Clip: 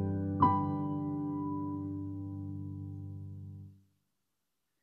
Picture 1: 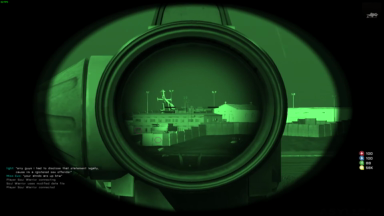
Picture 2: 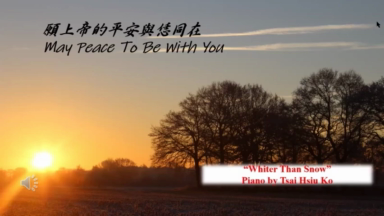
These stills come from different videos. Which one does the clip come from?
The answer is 2